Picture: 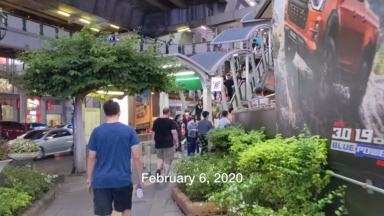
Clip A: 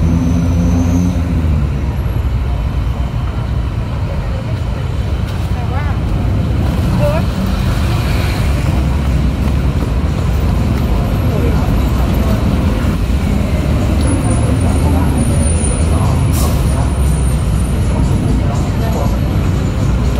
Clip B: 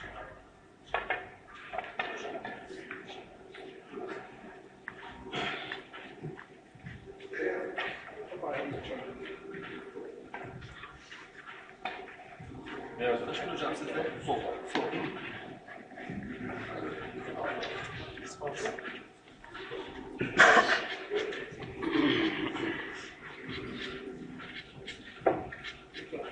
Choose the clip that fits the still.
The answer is A